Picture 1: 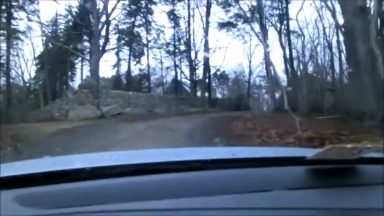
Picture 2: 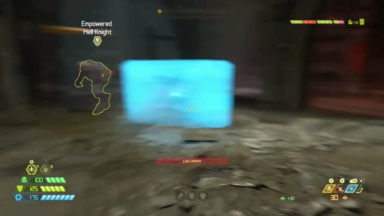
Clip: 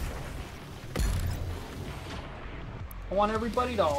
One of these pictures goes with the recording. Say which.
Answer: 2